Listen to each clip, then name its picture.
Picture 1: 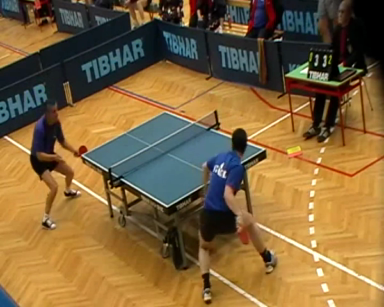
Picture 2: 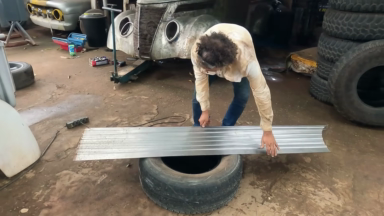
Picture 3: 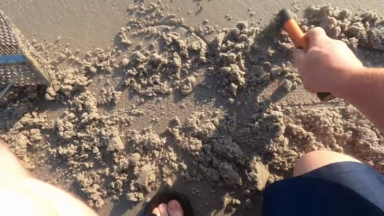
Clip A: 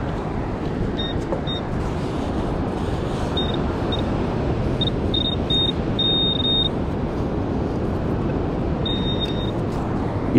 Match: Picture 3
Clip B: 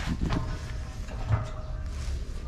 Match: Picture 2